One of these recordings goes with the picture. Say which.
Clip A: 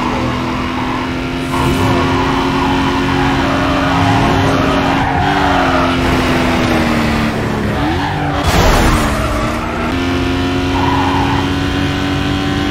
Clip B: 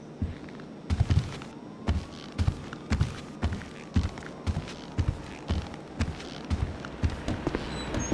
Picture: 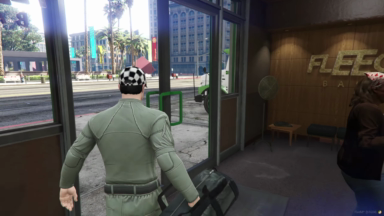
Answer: B